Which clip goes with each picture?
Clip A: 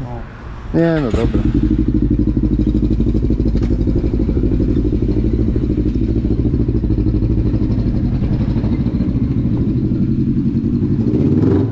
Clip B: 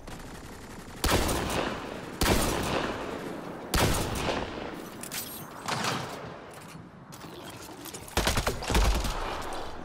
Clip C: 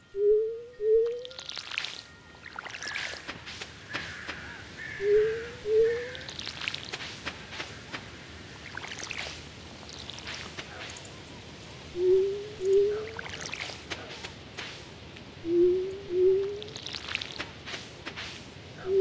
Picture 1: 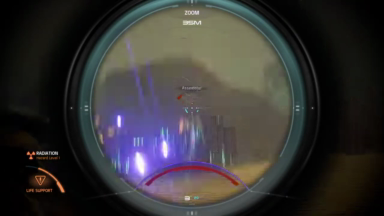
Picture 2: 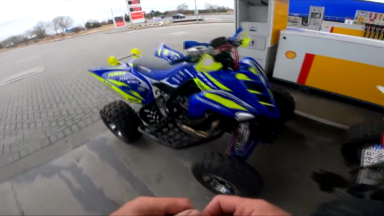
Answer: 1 B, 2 A